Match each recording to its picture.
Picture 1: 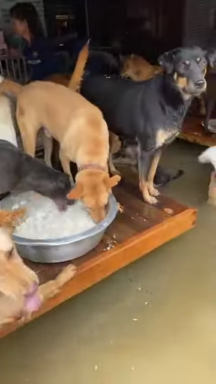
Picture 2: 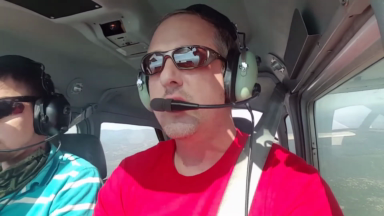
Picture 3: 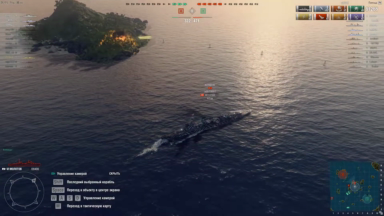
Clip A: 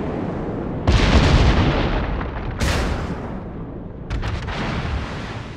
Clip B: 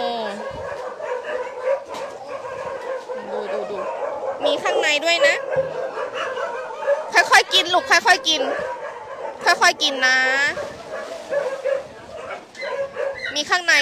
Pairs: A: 3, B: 1